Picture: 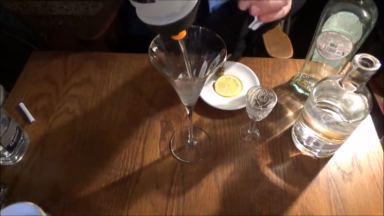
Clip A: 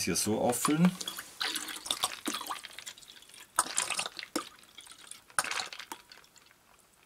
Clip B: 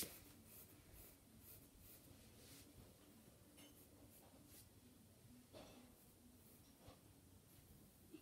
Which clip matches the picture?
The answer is A